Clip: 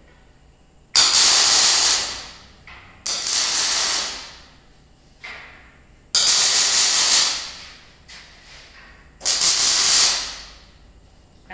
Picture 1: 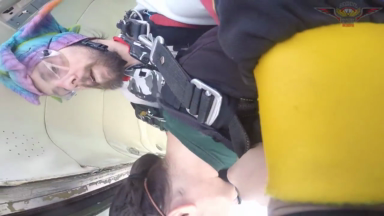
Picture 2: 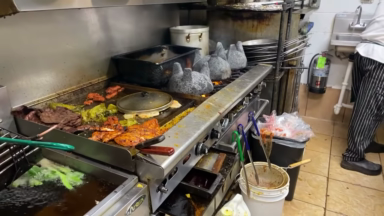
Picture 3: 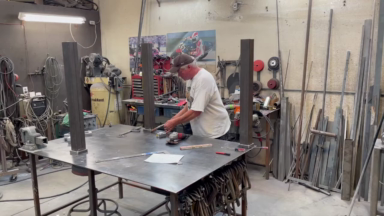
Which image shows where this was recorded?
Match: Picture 3